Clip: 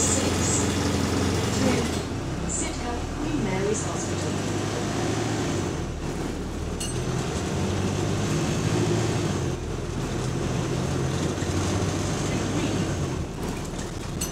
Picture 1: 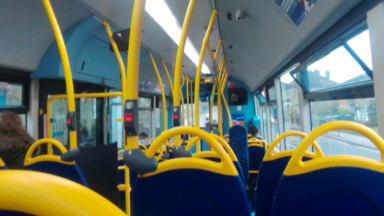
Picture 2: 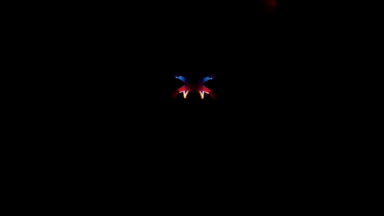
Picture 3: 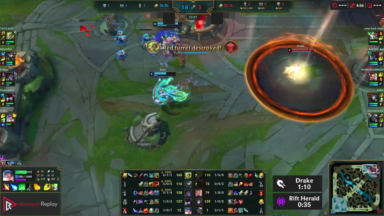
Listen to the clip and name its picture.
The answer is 1